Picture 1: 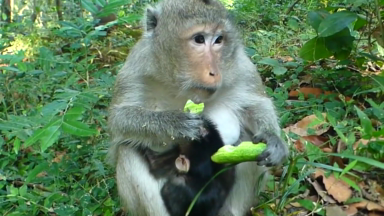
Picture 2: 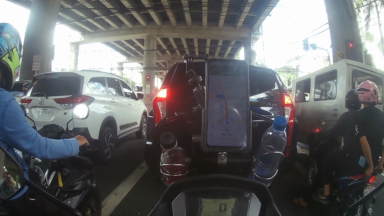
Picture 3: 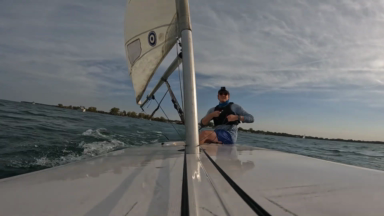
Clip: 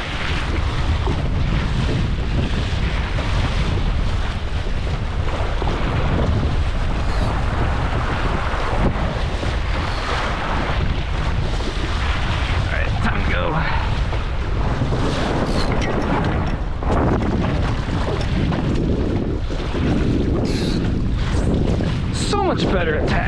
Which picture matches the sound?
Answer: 3